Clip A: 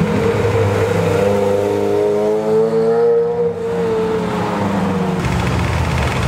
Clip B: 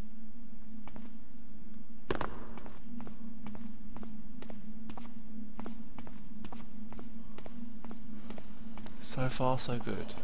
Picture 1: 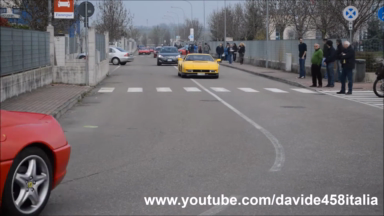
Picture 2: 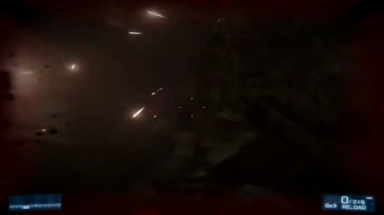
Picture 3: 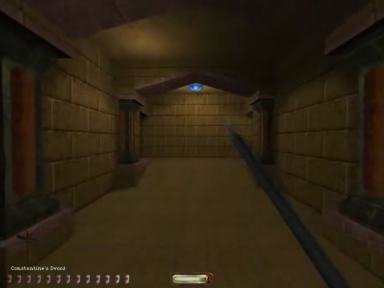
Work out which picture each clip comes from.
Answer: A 1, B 3